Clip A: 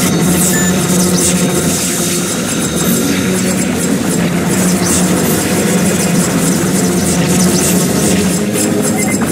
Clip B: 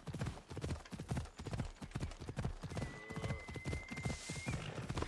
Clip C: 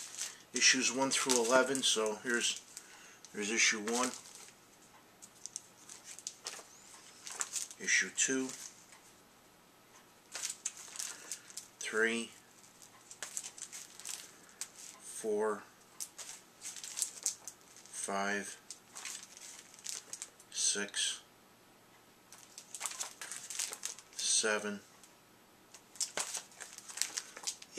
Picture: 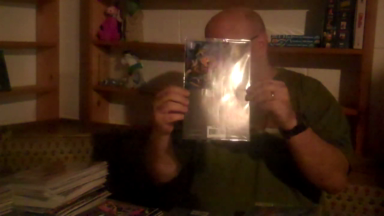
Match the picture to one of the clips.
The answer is C